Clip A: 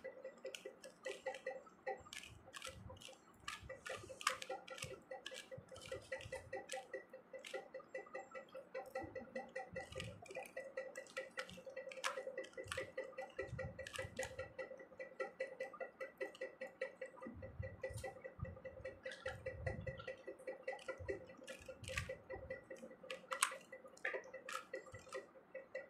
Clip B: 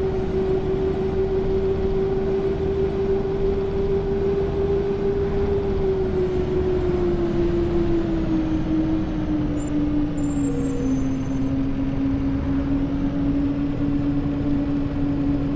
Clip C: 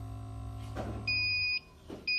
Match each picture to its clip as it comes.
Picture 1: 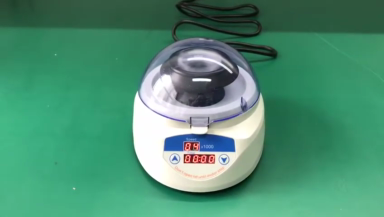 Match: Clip C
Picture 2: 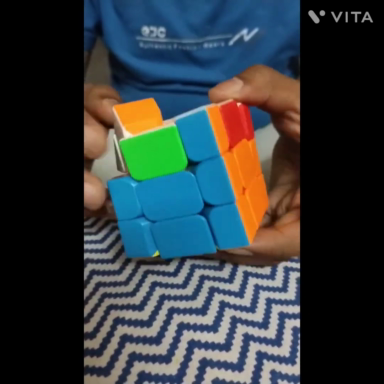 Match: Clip A